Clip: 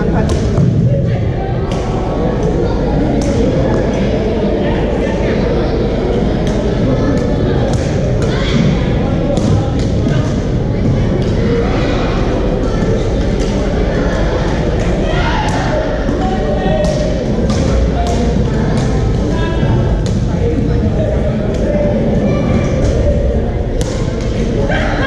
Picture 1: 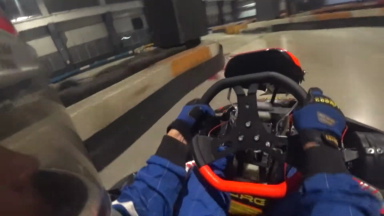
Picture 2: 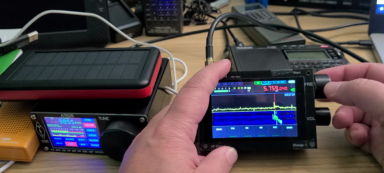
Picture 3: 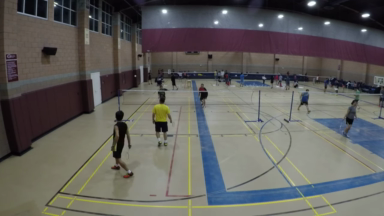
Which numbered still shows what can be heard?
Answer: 3